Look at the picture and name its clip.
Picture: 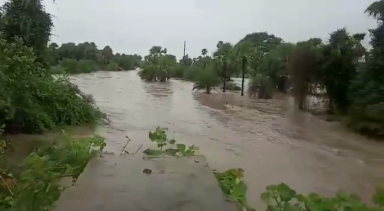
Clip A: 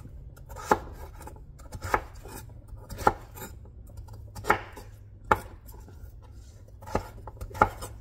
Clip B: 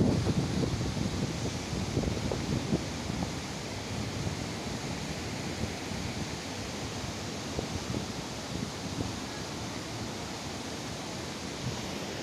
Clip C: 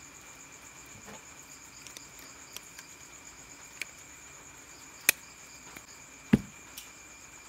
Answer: B